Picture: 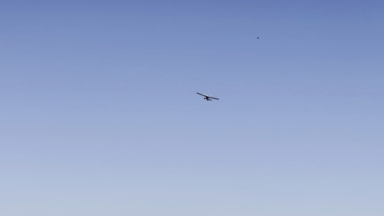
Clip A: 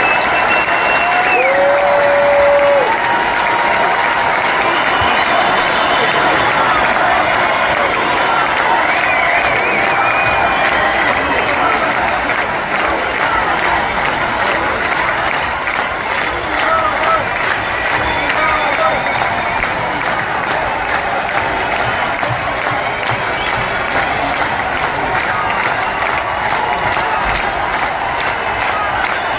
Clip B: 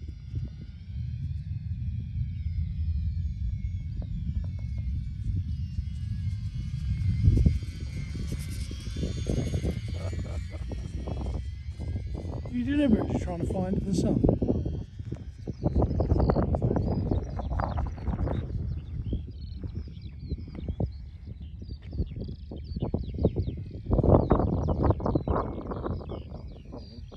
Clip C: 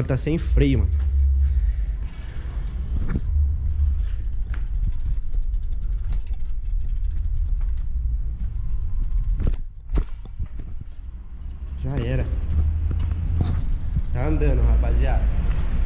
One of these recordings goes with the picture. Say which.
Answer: B